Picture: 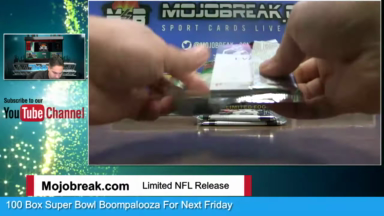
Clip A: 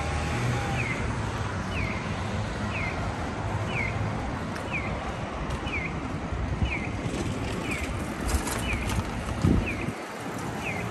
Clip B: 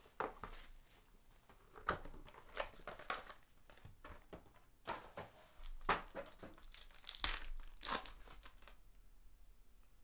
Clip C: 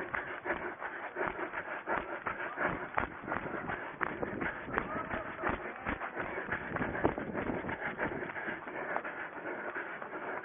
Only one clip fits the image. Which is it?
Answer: B